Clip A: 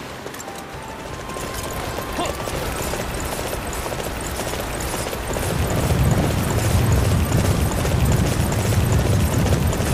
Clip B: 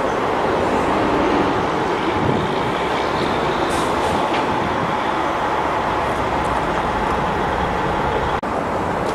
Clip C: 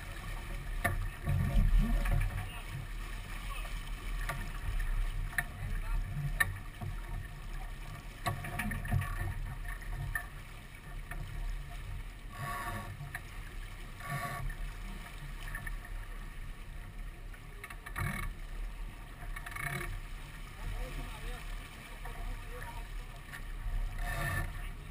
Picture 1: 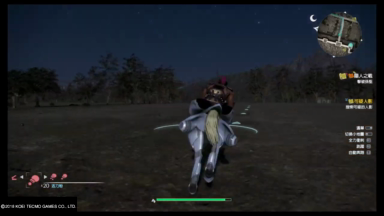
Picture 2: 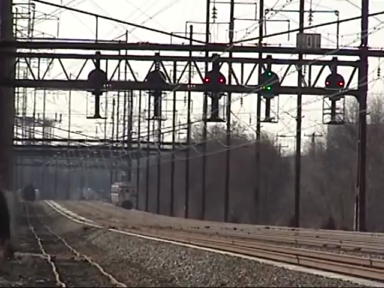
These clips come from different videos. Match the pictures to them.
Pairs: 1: A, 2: B